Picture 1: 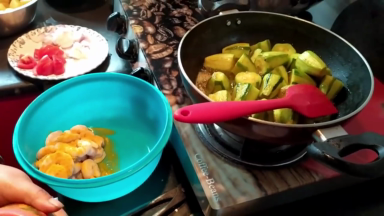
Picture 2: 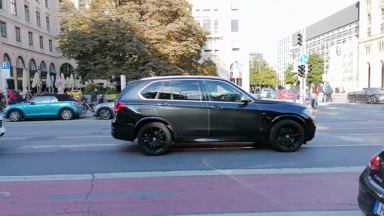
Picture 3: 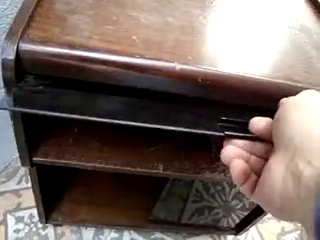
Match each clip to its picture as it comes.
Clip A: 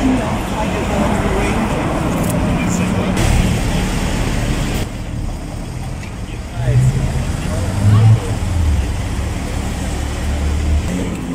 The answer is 2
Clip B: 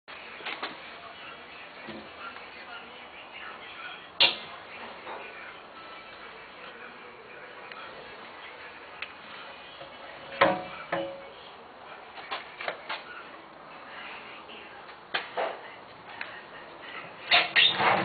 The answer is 3